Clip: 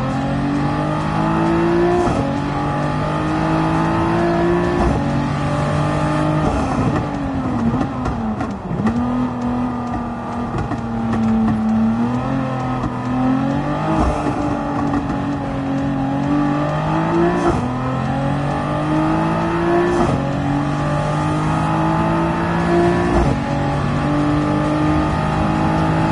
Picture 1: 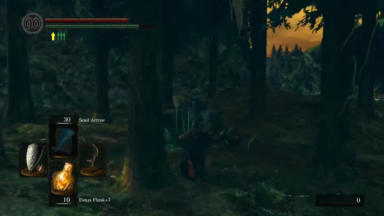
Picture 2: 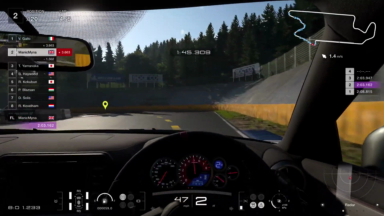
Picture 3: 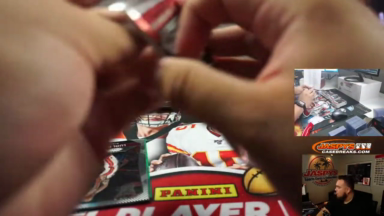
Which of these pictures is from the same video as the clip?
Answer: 2